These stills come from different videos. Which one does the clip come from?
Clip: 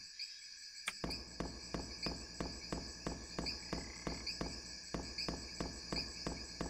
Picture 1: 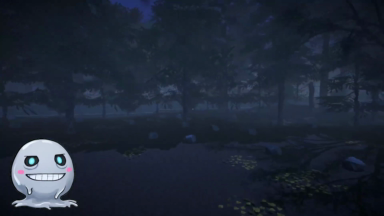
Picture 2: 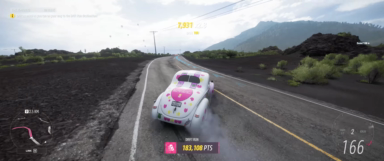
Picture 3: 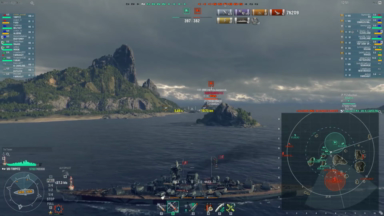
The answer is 1